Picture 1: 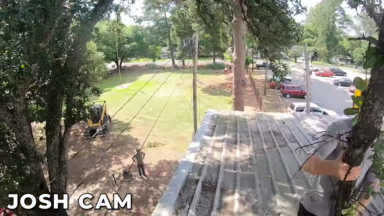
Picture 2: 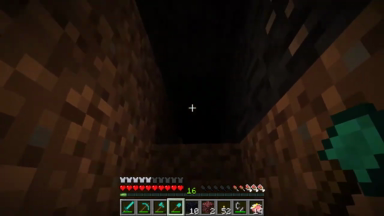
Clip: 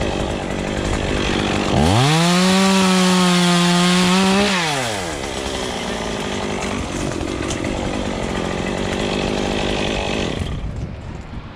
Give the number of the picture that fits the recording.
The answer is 1